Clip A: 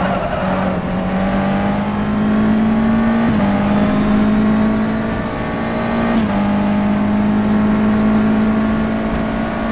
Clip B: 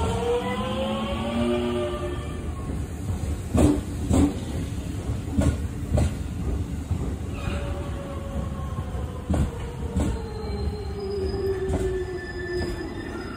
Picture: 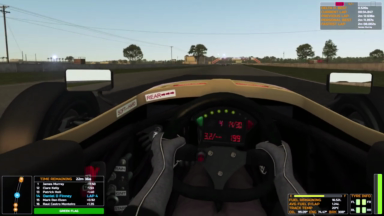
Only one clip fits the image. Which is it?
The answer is A